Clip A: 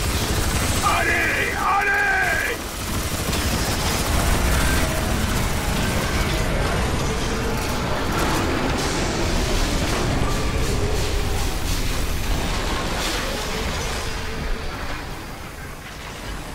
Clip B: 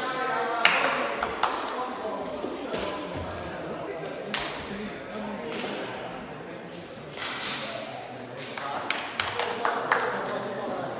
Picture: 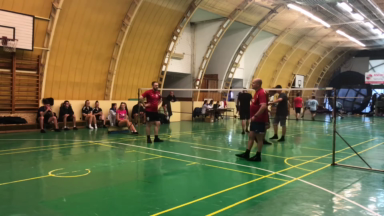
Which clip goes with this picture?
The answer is B